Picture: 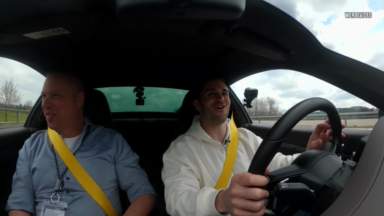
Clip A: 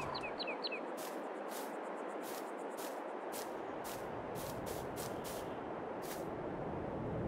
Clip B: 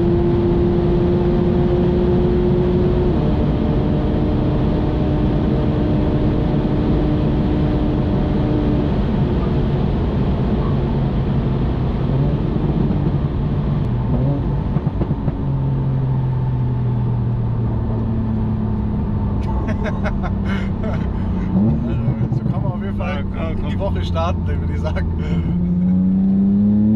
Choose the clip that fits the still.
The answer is B